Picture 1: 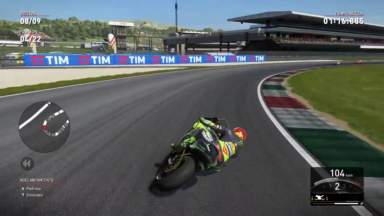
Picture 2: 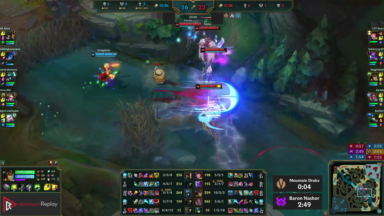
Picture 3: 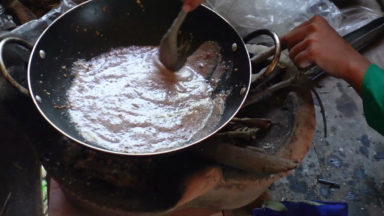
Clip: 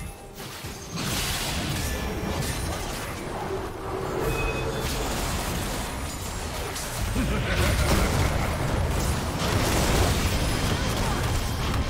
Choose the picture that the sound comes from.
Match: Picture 2